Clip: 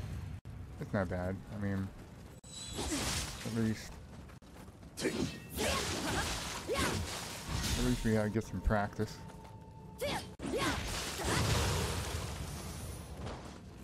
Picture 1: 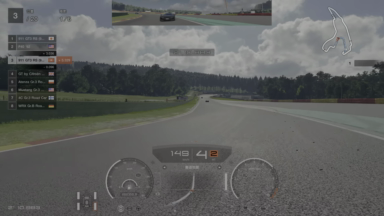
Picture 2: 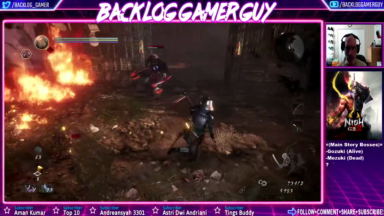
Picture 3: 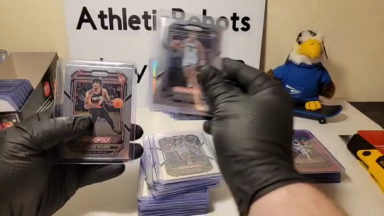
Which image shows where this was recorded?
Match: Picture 2